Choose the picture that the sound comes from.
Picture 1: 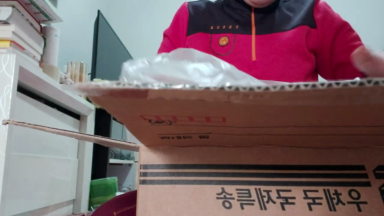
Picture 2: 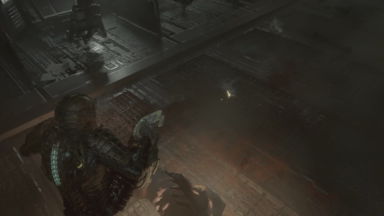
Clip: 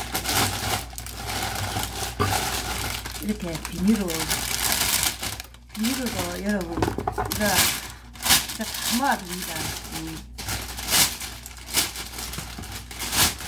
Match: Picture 1